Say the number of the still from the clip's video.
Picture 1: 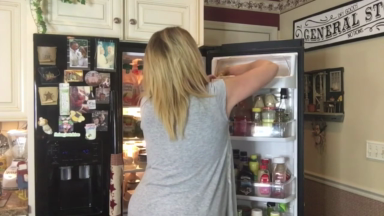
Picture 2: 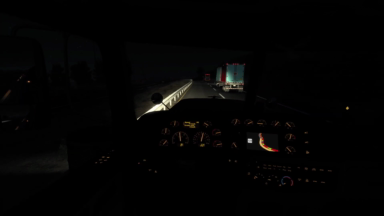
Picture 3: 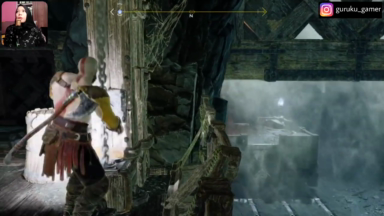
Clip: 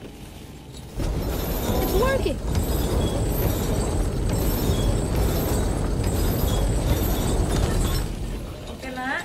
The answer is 3